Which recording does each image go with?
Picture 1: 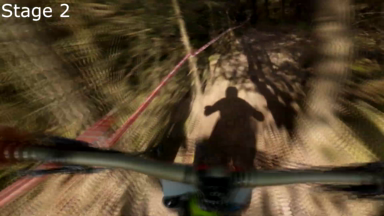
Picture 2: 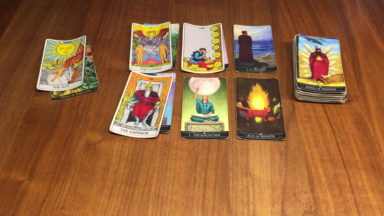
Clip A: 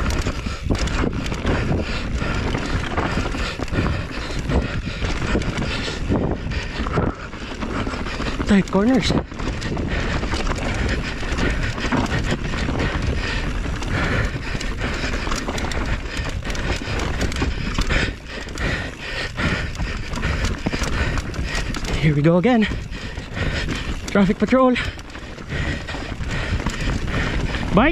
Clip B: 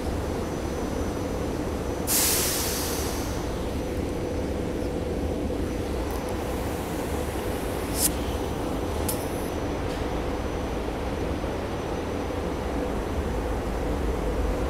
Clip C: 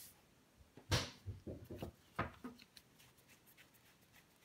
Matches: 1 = A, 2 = C